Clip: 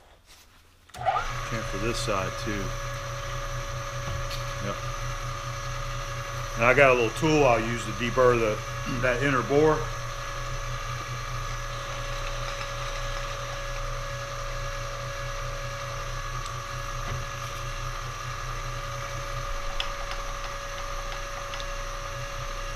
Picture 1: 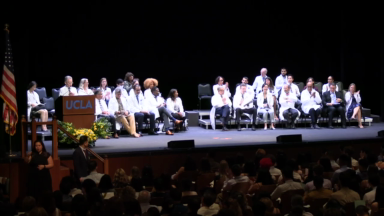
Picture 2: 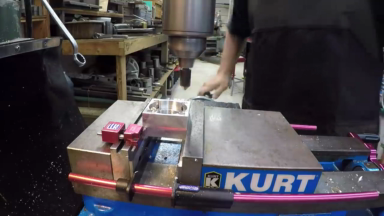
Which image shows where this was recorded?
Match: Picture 2